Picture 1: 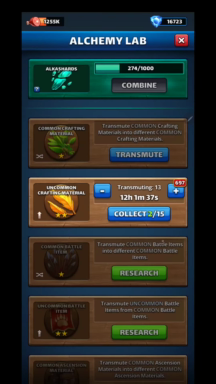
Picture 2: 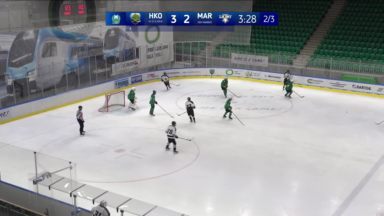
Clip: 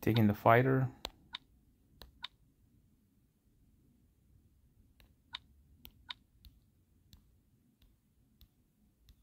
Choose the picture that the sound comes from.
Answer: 1